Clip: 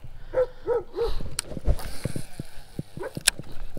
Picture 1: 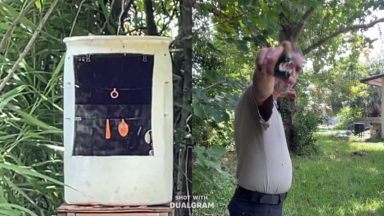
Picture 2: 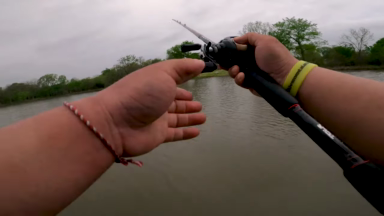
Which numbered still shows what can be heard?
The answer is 2